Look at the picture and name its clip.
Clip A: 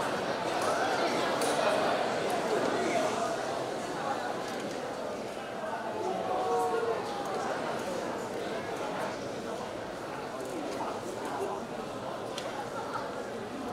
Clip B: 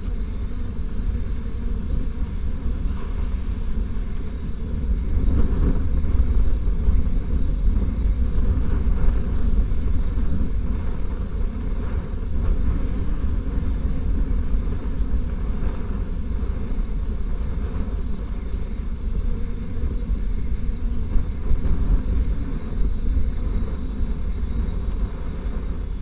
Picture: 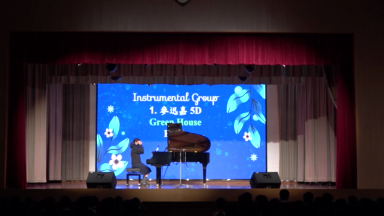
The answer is A